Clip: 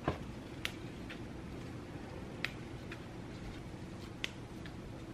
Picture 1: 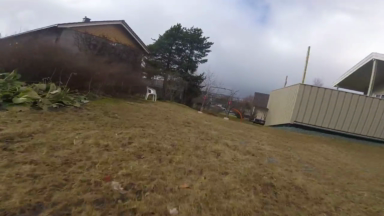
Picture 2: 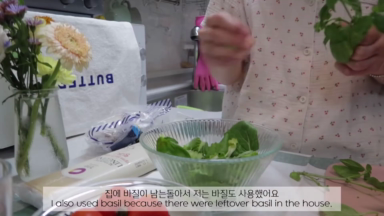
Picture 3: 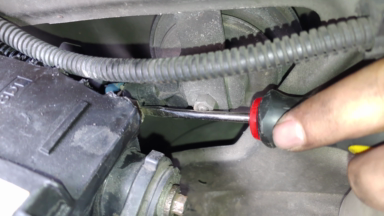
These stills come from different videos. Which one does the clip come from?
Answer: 2